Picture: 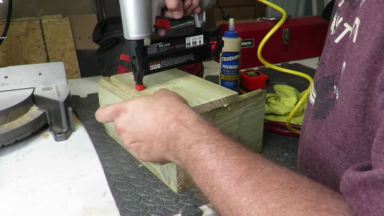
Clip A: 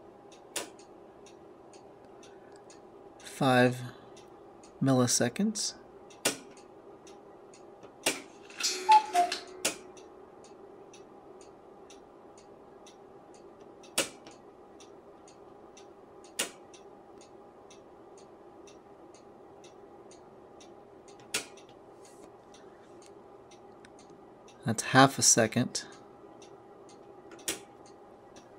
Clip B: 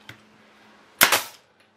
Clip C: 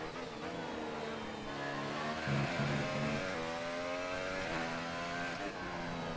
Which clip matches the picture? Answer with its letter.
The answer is B